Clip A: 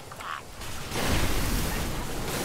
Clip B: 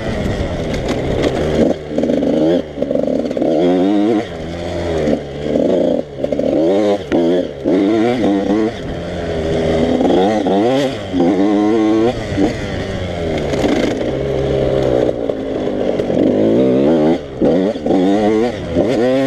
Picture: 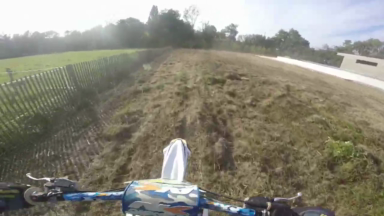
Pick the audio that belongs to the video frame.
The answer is B